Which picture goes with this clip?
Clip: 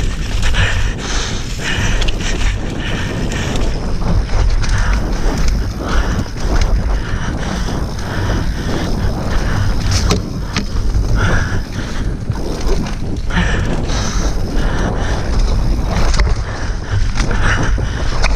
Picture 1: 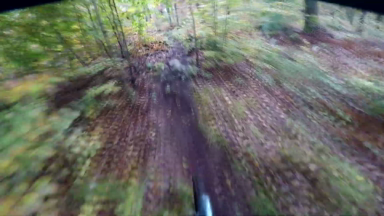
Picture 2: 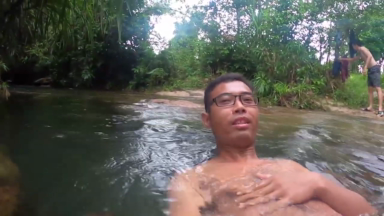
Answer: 1